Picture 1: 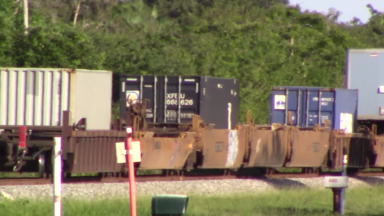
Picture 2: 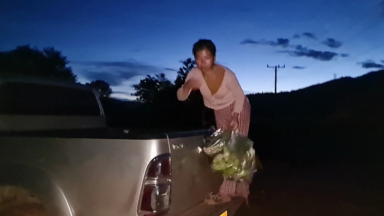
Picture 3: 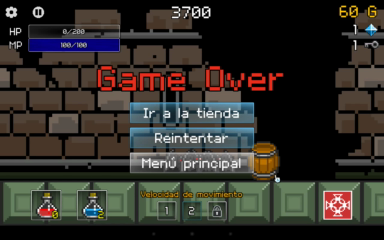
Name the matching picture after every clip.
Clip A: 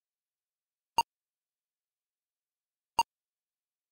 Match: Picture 3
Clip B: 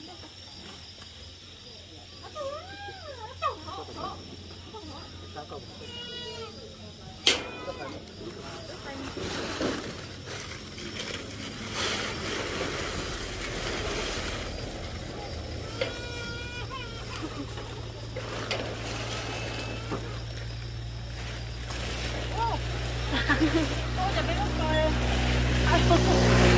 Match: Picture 2